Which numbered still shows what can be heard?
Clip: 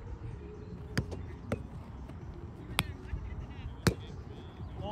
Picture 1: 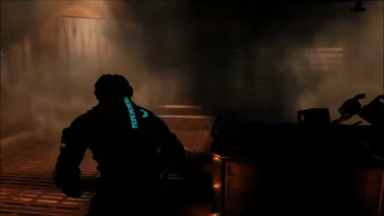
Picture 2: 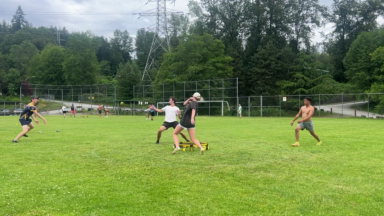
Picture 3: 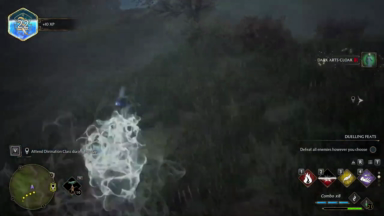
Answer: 2